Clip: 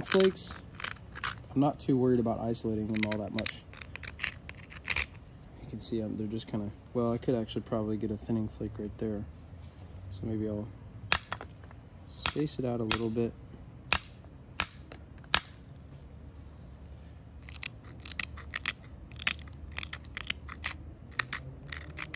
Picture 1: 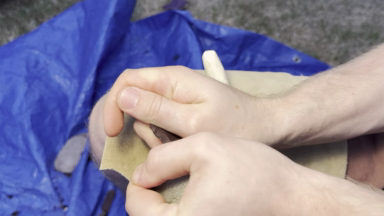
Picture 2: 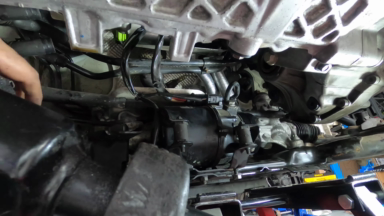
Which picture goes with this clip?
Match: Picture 1